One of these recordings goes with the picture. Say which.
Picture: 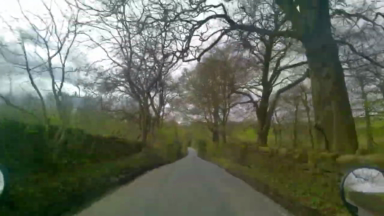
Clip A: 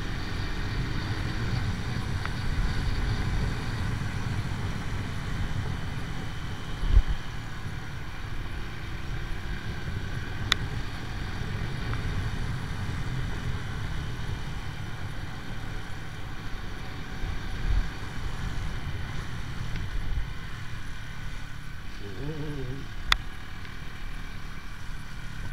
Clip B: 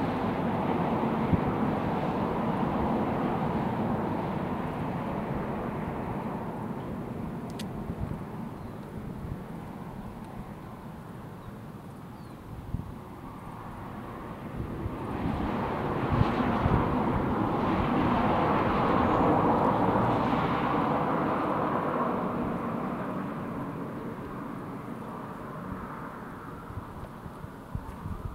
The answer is A